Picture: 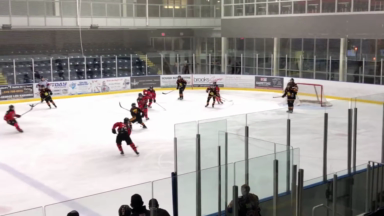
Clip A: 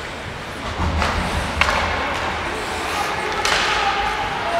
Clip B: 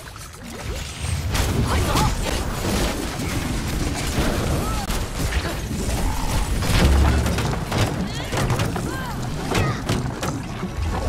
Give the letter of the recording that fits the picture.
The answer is A